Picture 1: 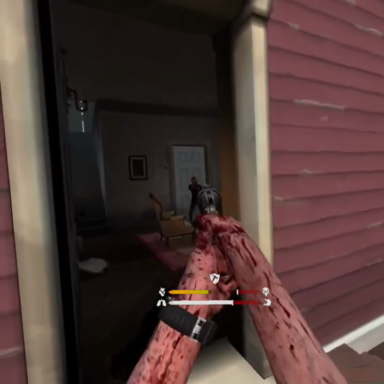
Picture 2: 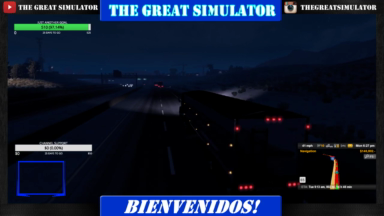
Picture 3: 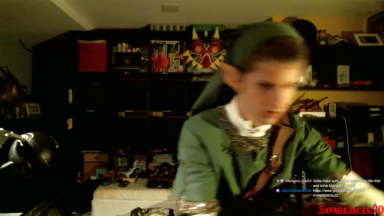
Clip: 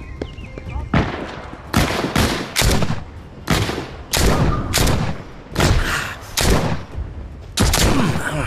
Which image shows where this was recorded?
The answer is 1